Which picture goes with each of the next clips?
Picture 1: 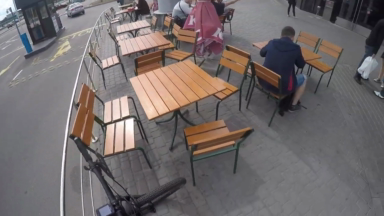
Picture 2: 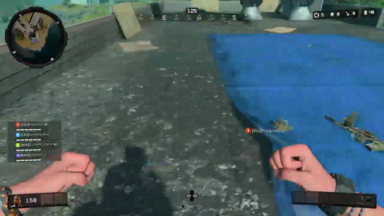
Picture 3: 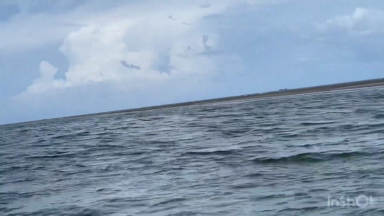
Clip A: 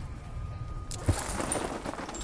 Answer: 2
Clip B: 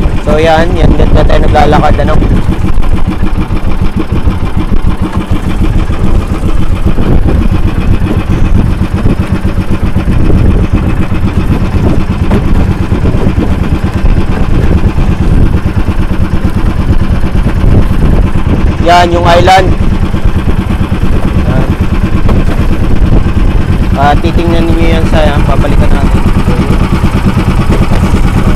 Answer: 3